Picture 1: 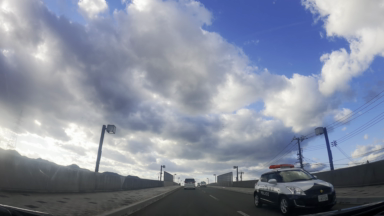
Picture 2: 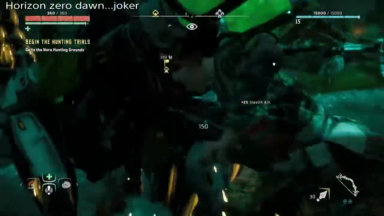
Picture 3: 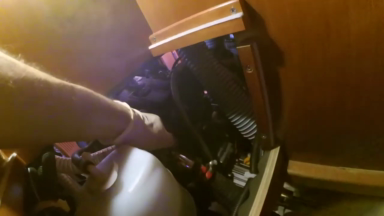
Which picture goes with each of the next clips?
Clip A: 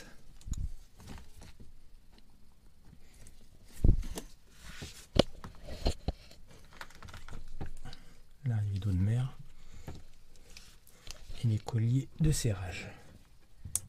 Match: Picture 3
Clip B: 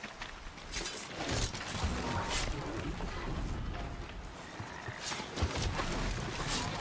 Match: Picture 2